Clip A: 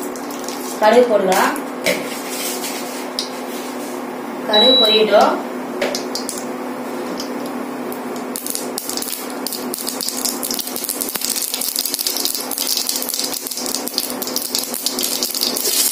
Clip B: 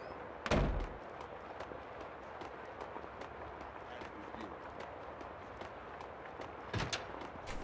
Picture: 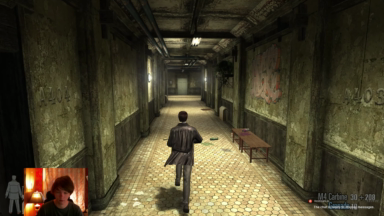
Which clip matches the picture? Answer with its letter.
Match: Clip B